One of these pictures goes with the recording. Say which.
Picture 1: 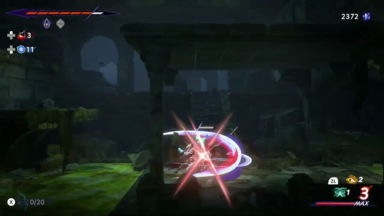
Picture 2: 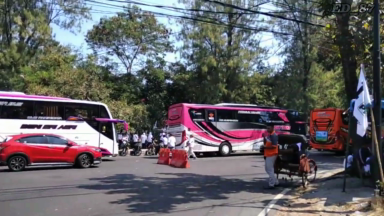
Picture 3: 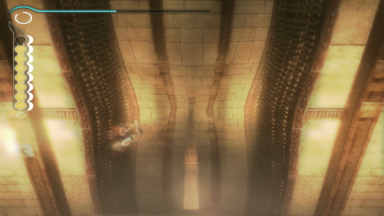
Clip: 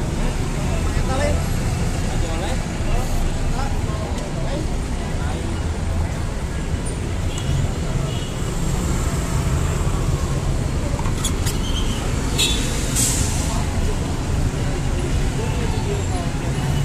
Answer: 2